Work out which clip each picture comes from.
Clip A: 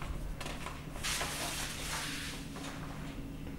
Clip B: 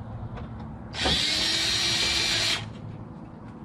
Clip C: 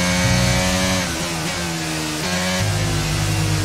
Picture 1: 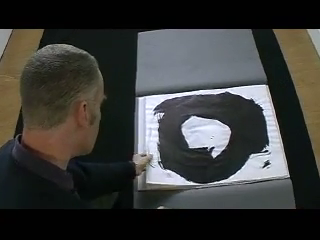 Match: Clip A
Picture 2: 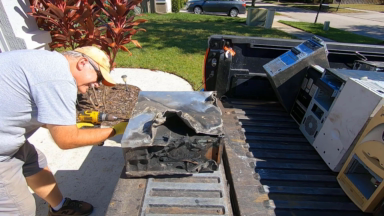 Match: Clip B